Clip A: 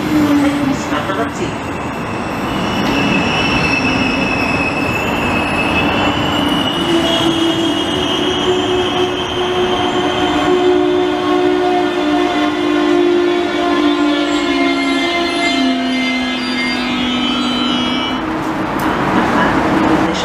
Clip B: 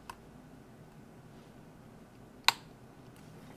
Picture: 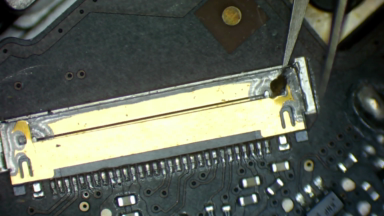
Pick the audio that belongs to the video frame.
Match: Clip B